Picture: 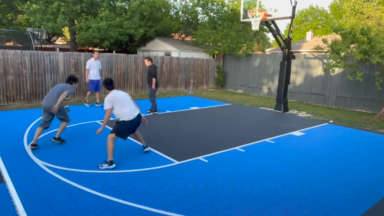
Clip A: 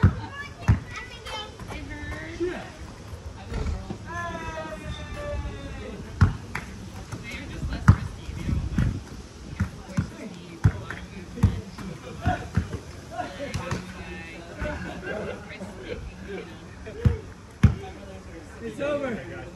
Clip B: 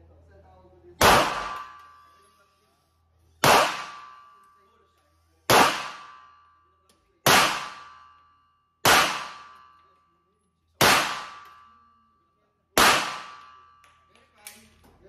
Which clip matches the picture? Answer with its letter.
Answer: A